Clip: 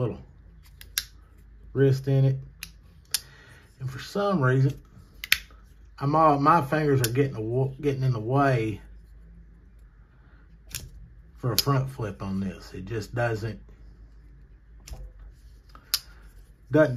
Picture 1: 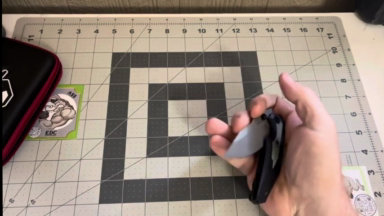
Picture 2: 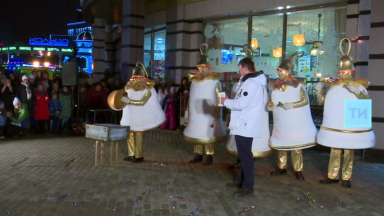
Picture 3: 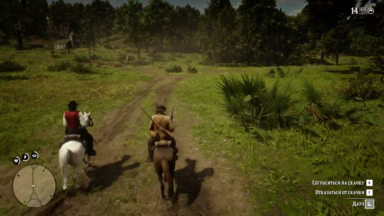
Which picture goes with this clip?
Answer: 1